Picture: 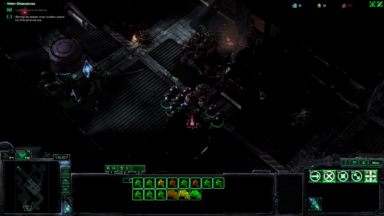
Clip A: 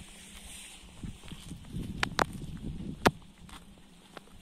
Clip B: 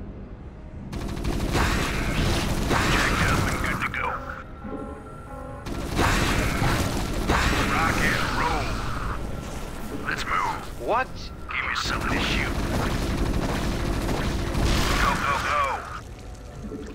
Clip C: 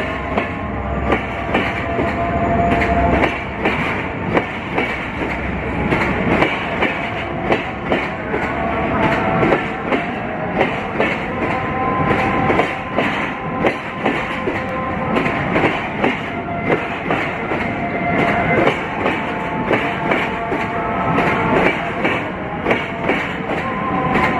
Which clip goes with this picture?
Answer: B